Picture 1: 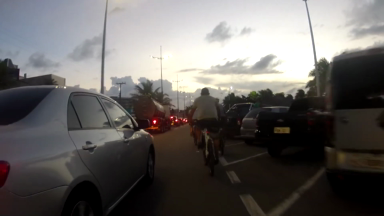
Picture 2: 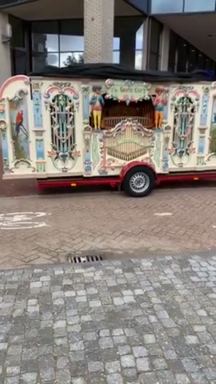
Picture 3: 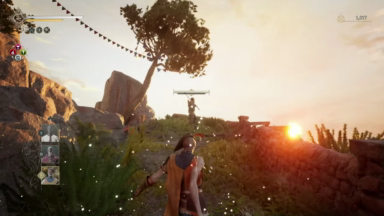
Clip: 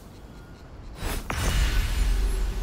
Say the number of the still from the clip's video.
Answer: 3